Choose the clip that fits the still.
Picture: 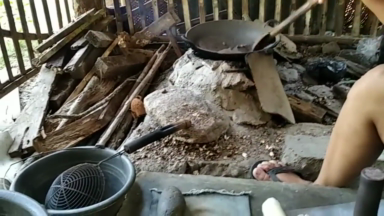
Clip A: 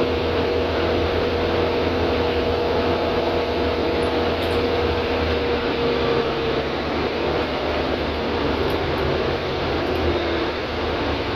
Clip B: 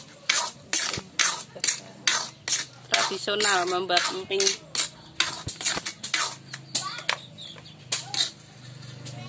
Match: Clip B